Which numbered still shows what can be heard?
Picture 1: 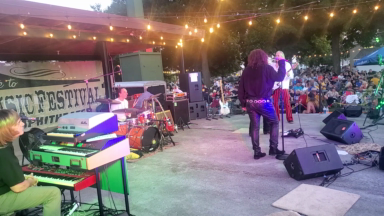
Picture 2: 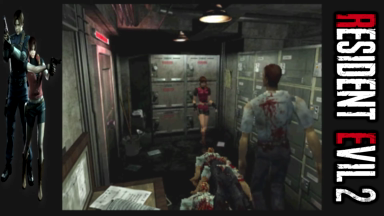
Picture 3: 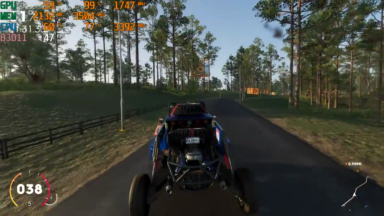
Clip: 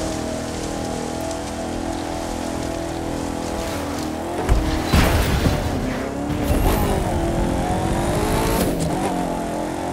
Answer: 3